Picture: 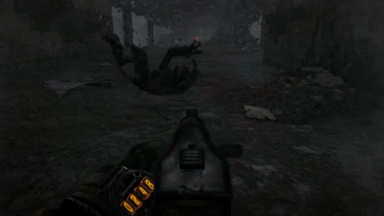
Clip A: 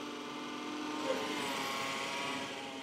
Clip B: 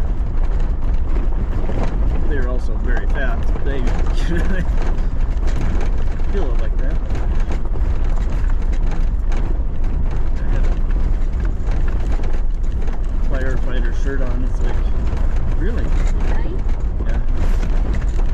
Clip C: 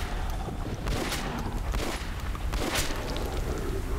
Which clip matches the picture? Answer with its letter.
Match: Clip C